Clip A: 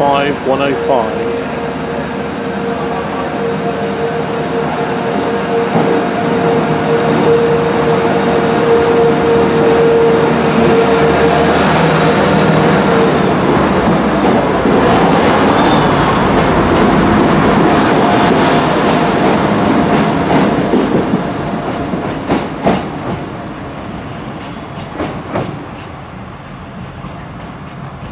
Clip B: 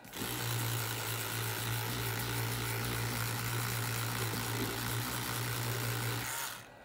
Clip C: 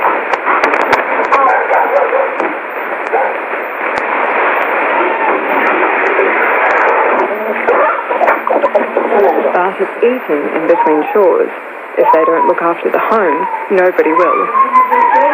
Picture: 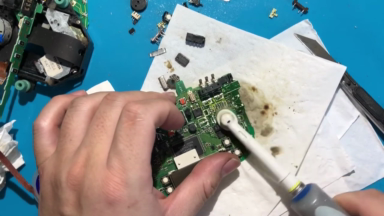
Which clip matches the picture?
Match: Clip B